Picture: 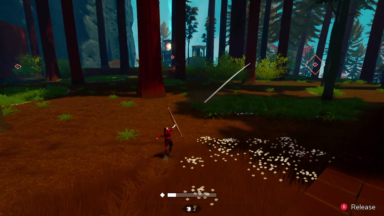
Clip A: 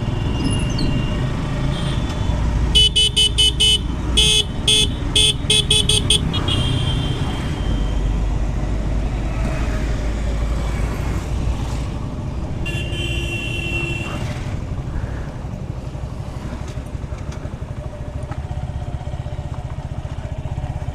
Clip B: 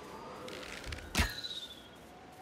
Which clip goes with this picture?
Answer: B